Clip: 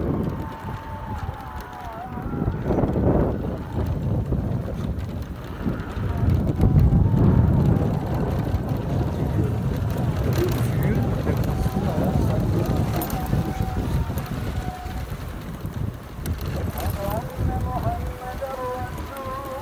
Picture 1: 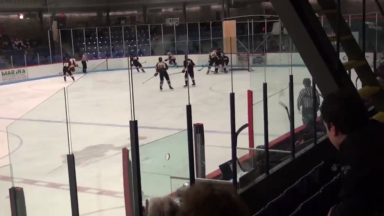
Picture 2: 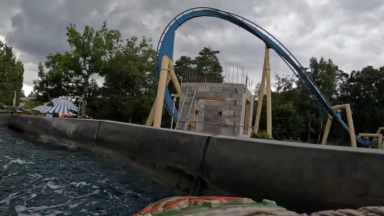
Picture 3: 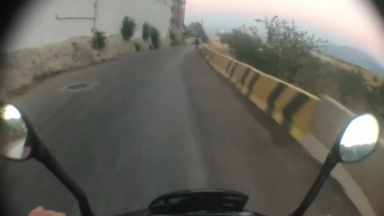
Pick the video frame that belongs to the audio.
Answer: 3